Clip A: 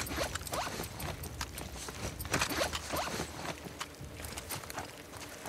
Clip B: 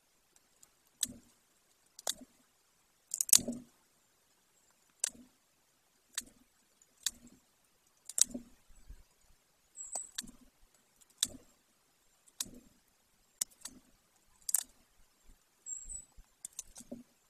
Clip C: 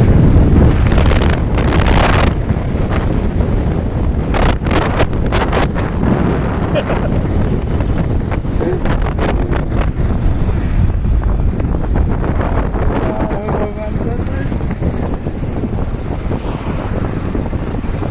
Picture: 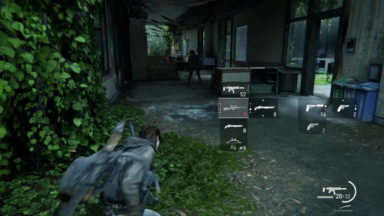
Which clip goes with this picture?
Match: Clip A